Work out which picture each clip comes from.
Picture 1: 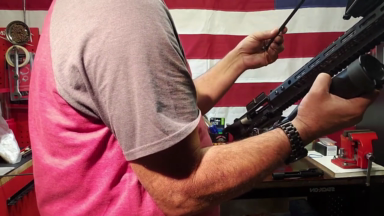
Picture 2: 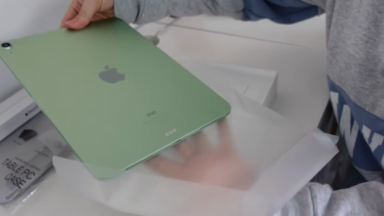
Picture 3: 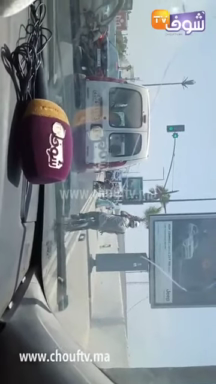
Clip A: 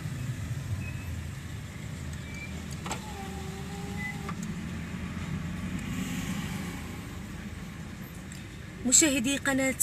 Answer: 3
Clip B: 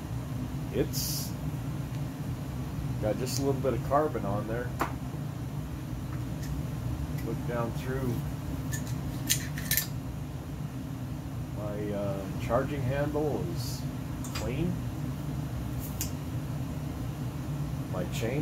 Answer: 1